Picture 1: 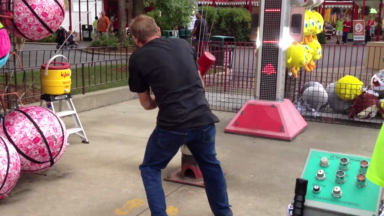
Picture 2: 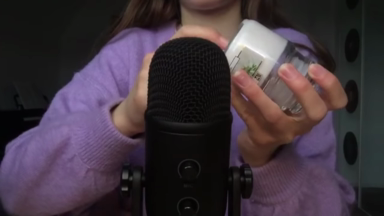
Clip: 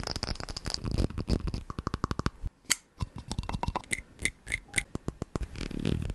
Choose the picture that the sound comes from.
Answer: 2